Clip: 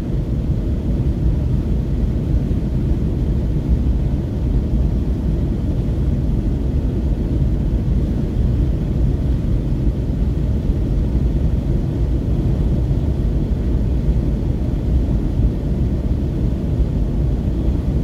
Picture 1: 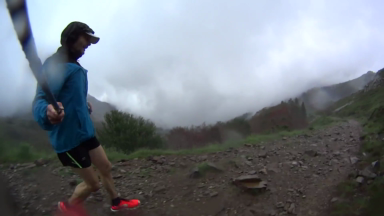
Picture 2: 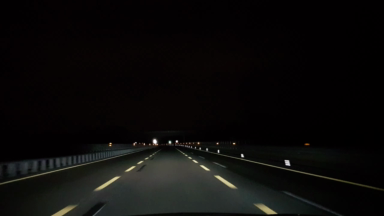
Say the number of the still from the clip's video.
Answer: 2